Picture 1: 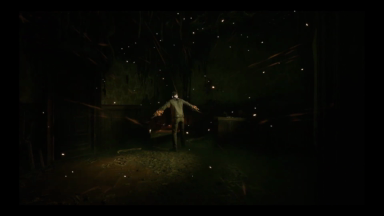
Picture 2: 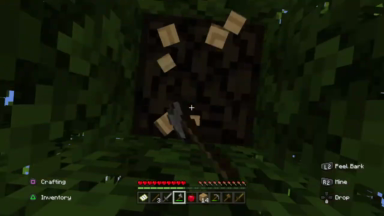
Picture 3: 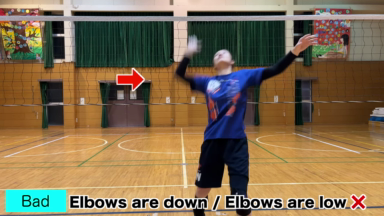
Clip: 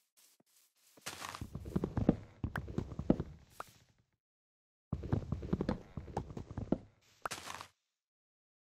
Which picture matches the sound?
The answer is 2